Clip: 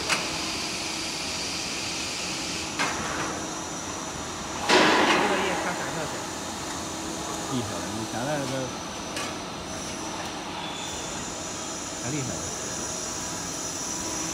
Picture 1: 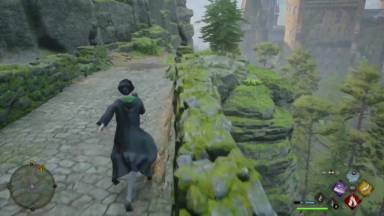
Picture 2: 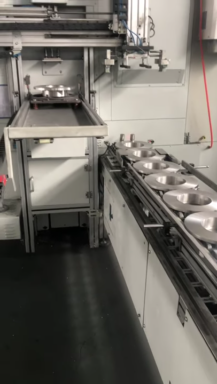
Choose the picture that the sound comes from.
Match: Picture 2